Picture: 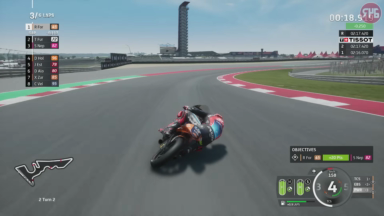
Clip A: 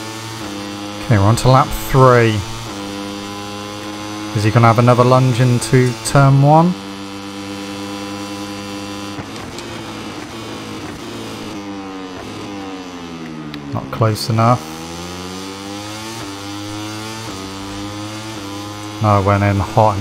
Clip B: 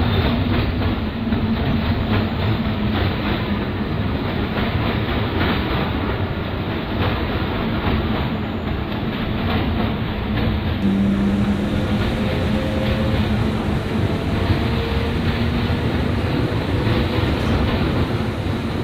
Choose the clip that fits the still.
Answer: A